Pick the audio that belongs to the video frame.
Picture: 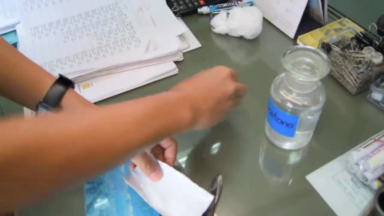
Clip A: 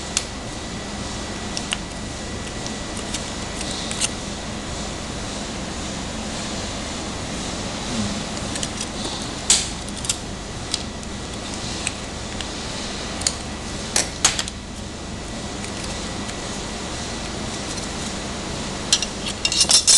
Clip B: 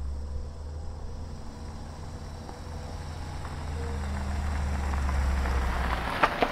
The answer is A